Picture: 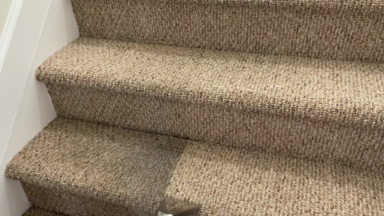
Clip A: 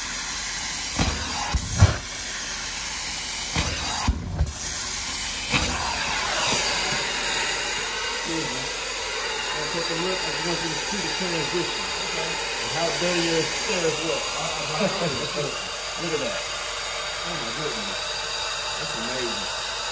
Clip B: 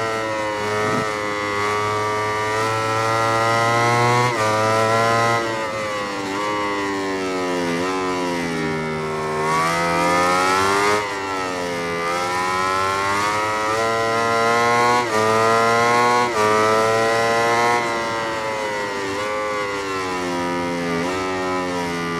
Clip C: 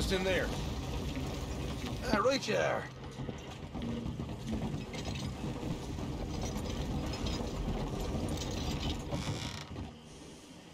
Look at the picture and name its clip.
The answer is A